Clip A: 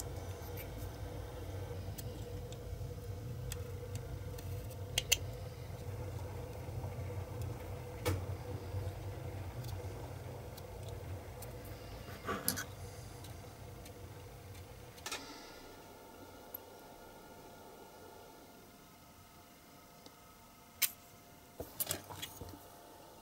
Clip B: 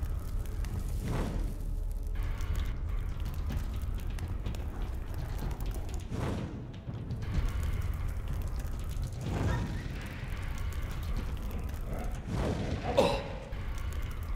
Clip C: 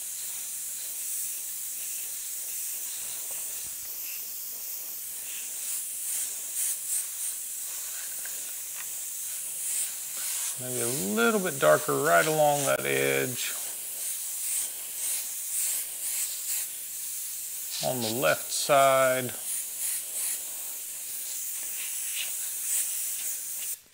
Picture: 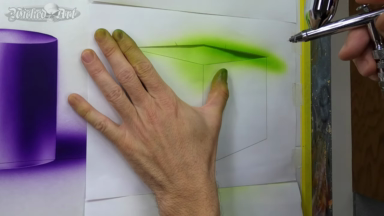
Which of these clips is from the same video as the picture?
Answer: C